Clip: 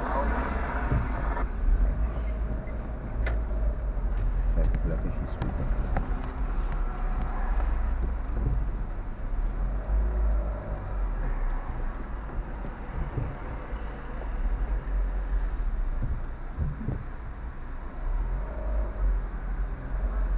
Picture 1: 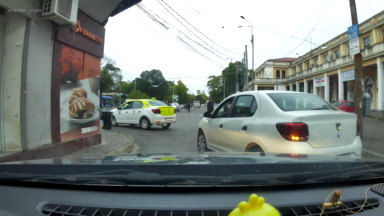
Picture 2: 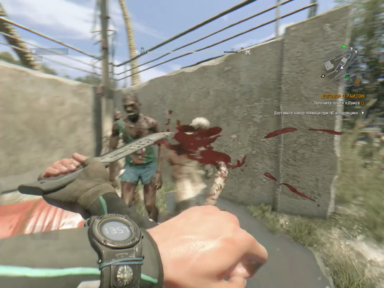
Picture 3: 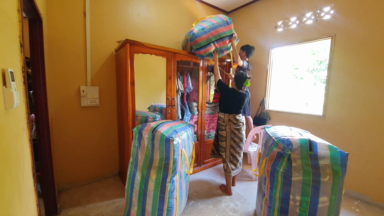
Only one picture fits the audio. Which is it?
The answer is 1